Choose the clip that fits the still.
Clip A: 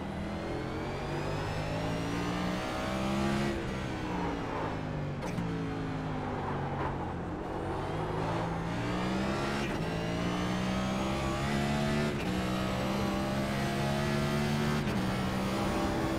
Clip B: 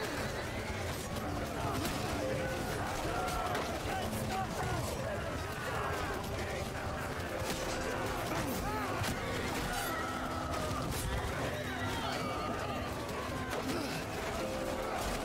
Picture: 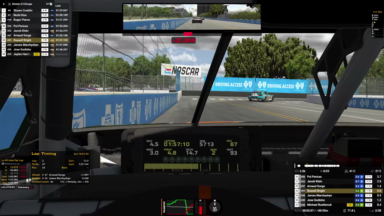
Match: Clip A